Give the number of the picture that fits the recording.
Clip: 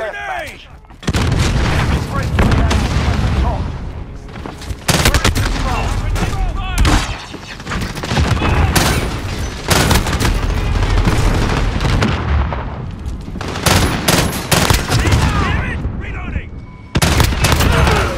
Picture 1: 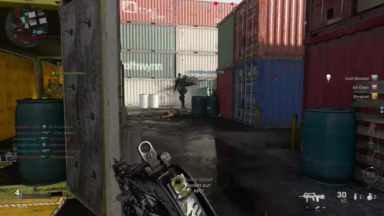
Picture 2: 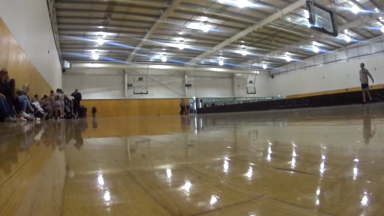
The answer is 1